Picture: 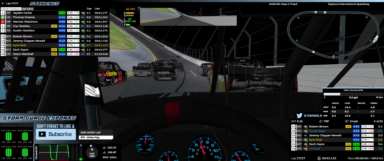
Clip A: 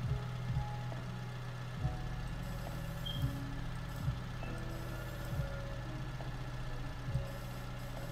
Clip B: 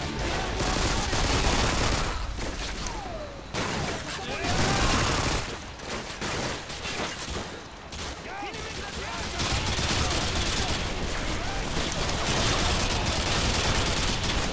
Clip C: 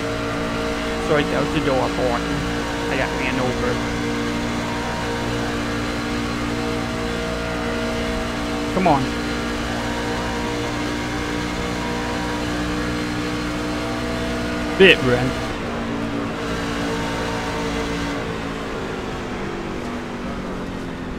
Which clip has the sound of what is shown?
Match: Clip C